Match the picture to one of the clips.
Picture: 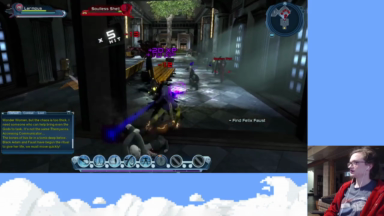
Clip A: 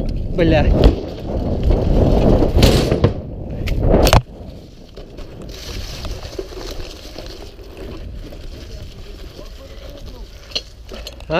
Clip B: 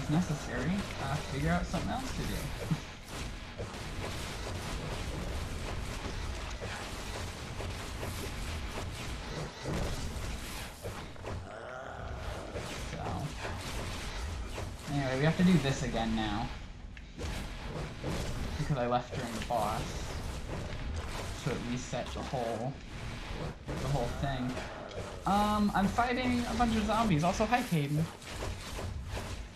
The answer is B